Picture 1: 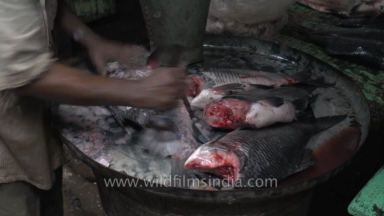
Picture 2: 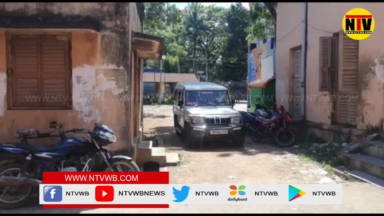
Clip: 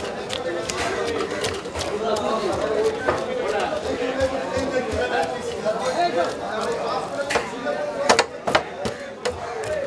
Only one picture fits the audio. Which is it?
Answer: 1